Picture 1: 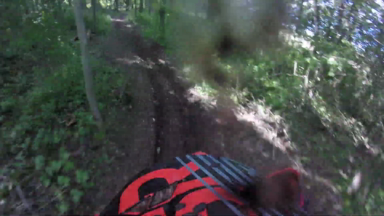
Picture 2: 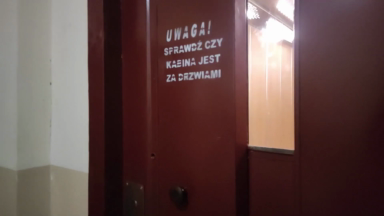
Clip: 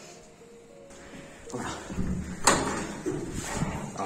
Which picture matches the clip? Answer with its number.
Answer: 2